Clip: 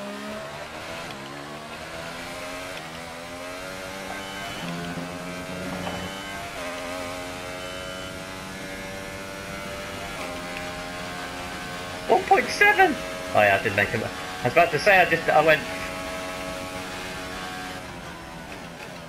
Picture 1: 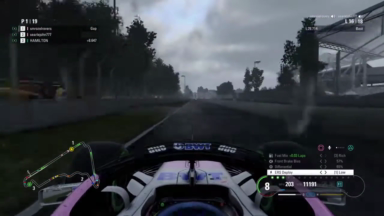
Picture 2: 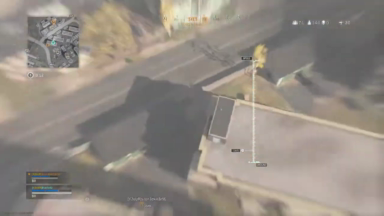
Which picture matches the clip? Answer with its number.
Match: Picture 1